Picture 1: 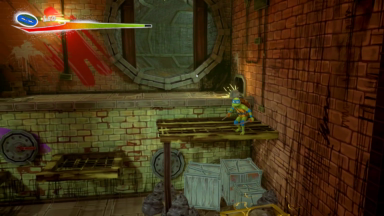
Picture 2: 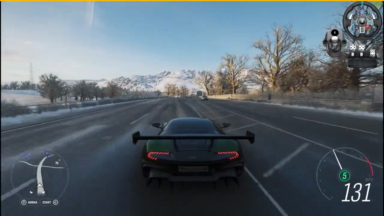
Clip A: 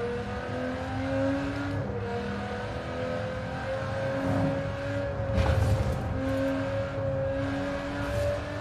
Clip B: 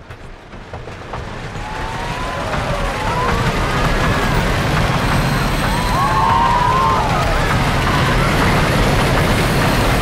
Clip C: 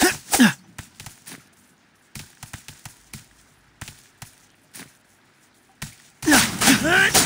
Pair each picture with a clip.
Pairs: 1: C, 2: A